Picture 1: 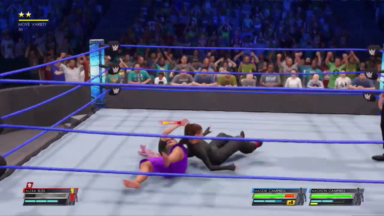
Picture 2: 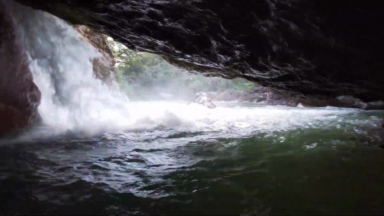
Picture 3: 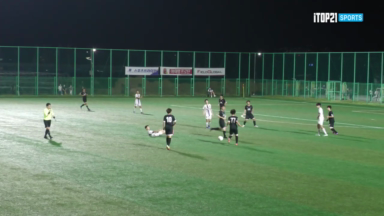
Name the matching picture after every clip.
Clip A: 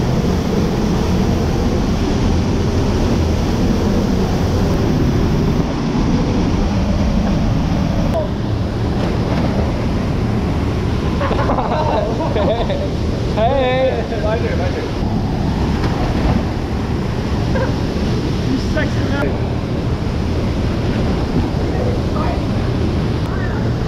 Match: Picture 2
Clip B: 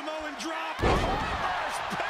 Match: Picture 1